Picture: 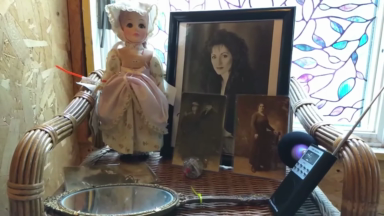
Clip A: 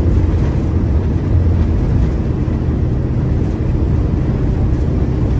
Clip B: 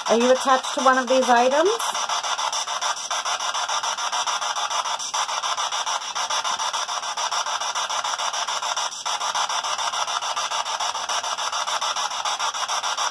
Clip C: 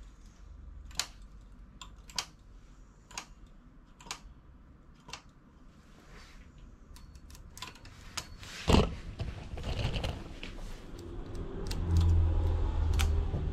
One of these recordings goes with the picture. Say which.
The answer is B